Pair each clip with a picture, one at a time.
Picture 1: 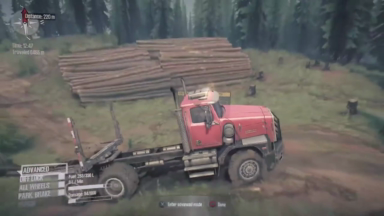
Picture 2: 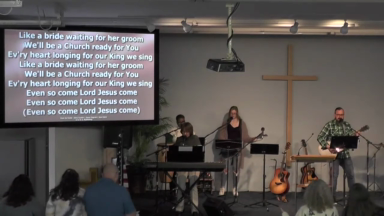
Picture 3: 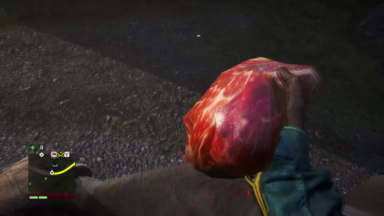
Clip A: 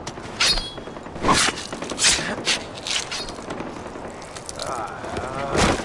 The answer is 3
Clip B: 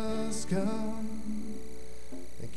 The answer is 2